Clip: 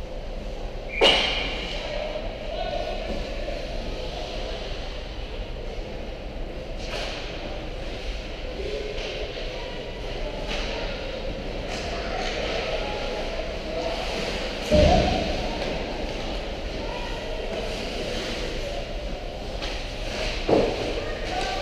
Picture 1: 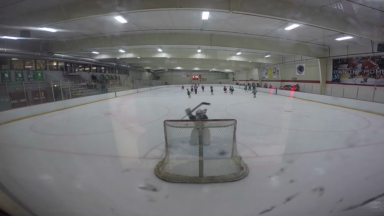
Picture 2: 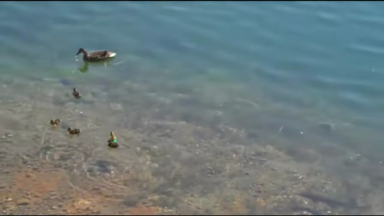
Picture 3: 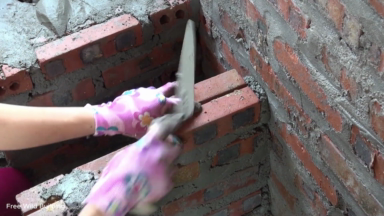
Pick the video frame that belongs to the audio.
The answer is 1